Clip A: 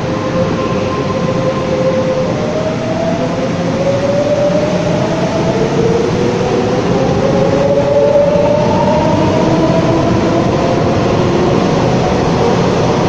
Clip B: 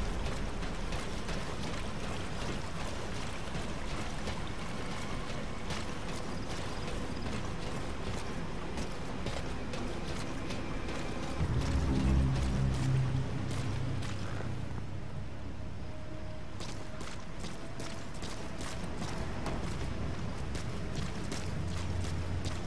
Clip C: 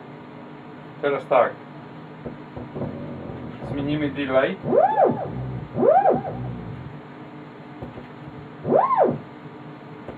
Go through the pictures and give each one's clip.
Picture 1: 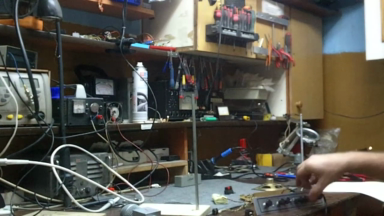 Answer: C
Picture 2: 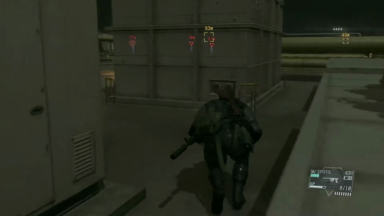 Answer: B